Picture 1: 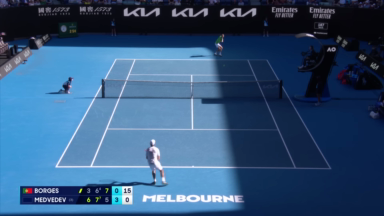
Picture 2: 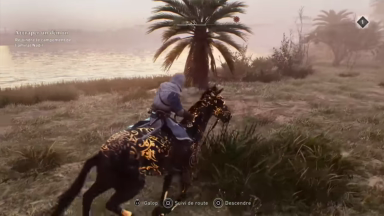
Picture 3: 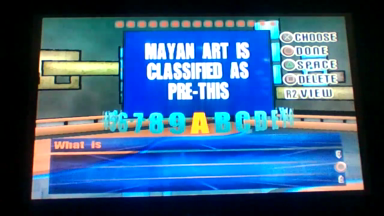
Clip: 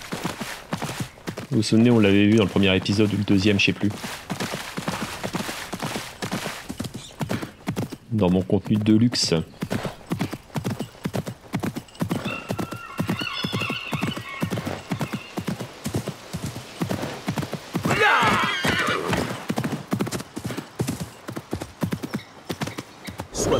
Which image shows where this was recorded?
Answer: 2